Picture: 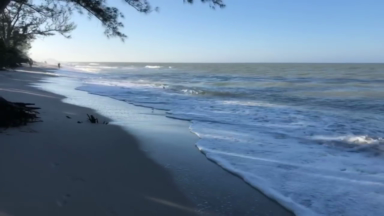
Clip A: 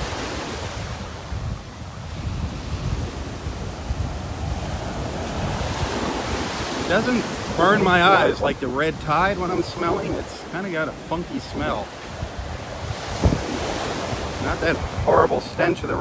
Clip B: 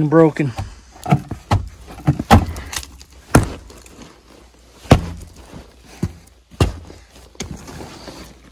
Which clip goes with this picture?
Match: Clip A